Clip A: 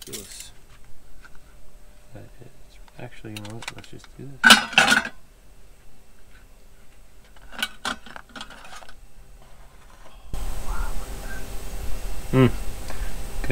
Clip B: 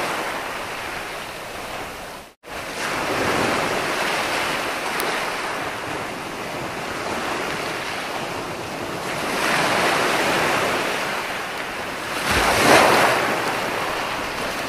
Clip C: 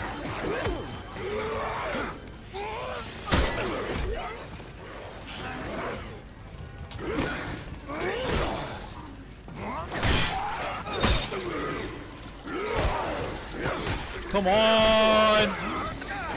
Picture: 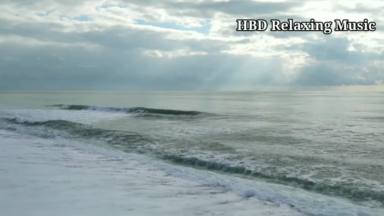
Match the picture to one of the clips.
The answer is B